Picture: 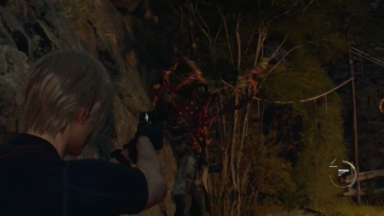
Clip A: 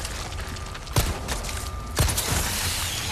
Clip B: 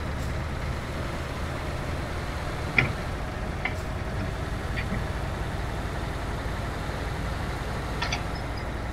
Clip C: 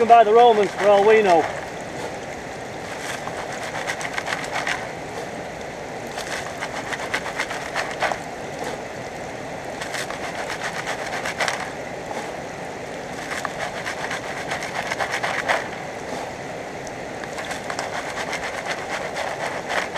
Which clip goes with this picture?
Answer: A